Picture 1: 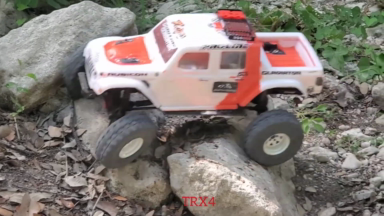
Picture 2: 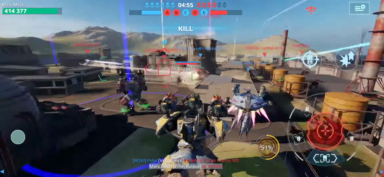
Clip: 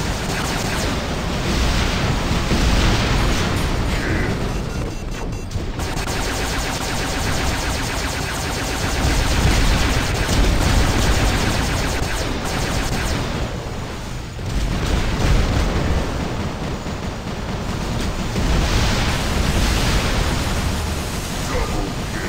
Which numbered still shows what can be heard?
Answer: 2